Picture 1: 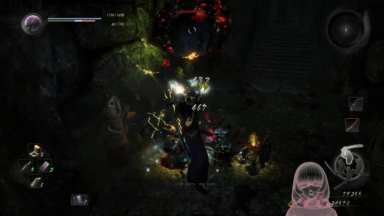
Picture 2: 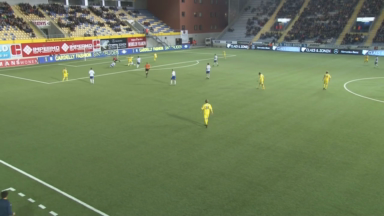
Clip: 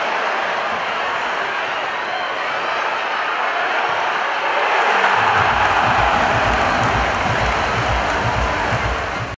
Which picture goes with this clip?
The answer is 2